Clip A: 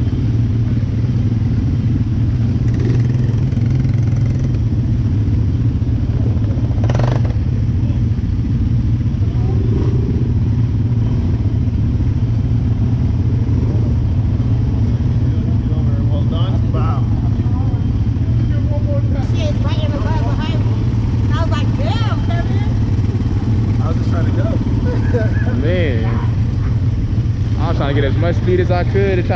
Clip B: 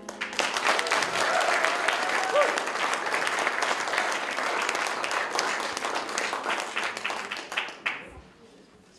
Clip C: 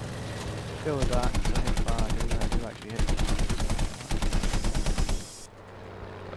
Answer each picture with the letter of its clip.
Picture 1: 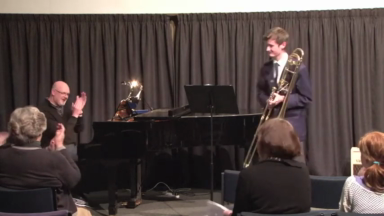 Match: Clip B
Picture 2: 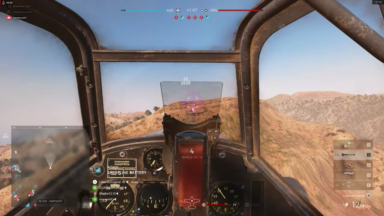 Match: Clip C